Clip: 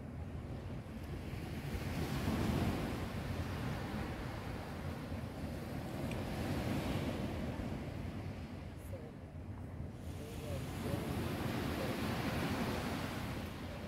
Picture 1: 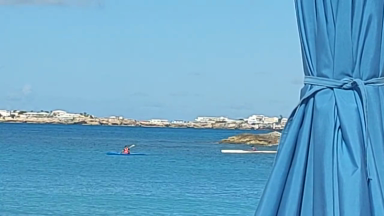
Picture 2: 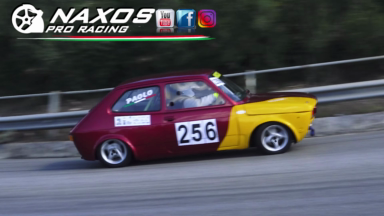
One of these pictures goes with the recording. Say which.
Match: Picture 1